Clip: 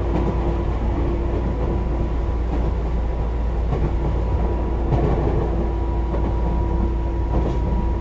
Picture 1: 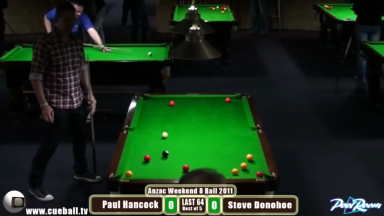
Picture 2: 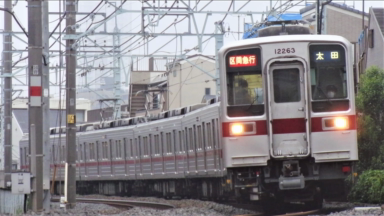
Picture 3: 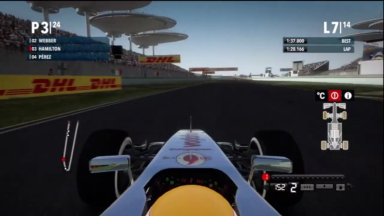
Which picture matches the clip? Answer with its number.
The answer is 2